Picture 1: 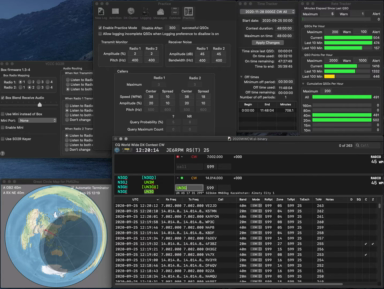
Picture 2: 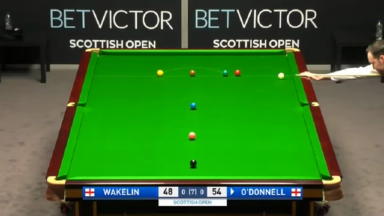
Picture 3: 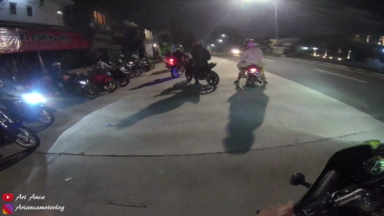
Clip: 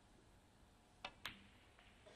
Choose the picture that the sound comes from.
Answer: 2